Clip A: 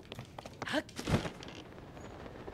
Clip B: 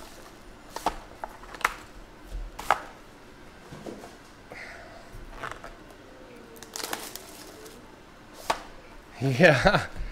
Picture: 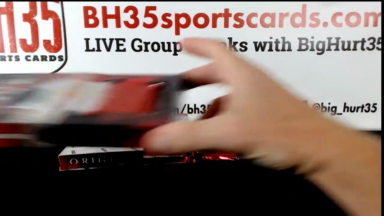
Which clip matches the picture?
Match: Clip B